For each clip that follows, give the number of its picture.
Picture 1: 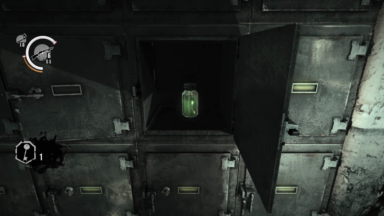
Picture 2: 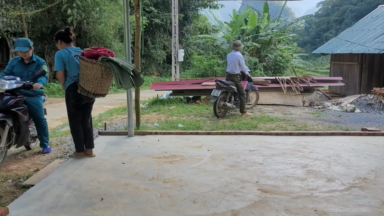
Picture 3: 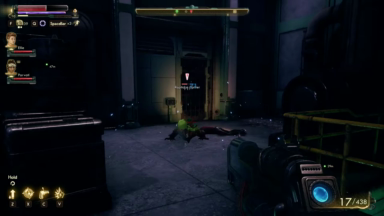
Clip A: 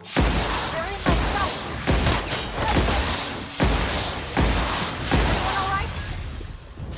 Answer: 3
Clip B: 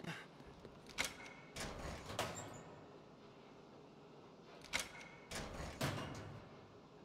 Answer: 1